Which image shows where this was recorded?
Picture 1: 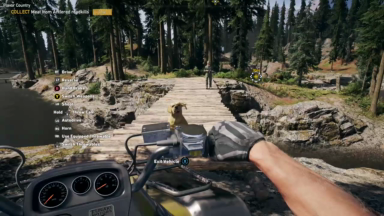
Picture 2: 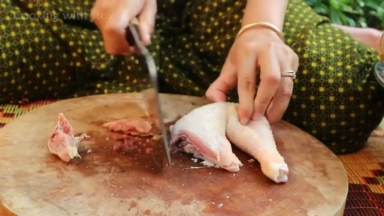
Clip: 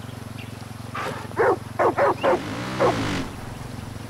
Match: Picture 1